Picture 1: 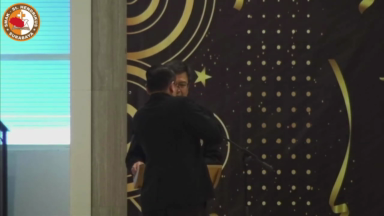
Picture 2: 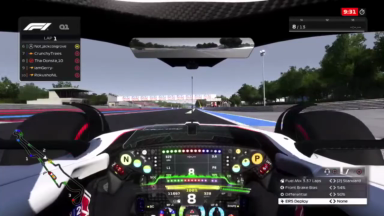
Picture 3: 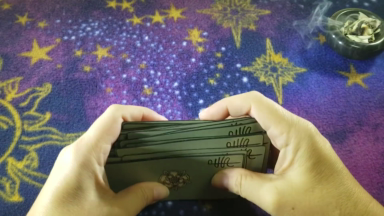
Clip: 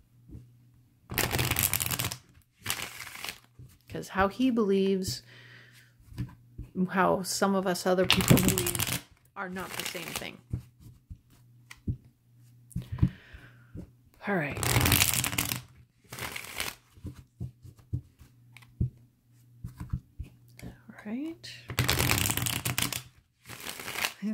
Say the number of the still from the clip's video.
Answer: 3